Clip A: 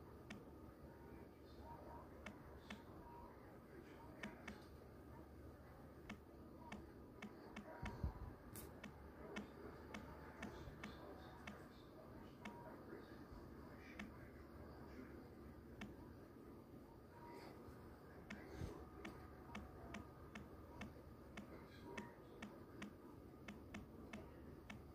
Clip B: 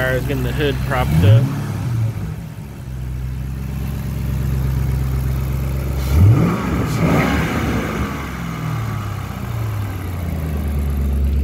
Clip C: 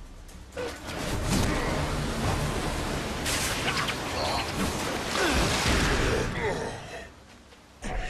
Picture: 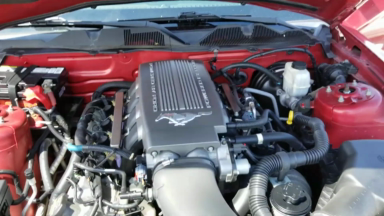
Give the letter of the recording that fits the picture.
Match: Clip B